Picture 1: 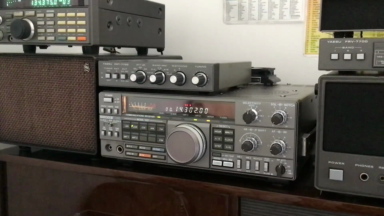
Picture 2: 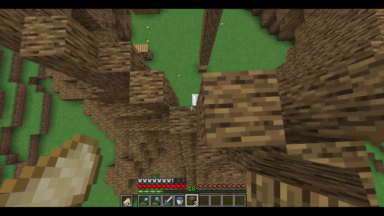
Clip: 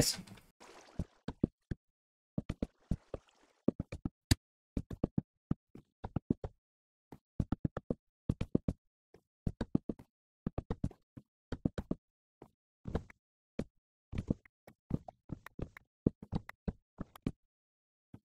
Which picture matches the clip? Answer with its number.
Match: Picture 2